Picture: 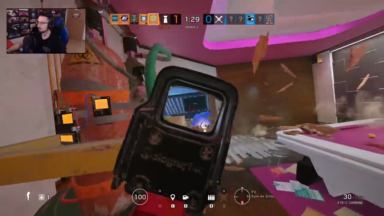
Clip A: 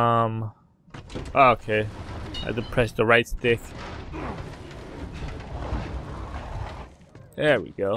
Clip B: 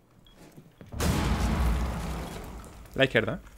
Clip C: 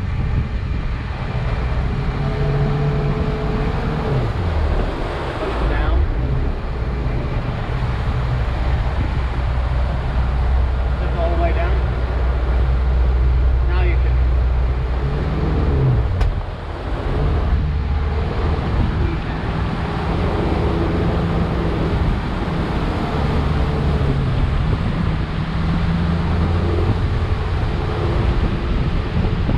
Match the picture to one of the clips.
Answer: B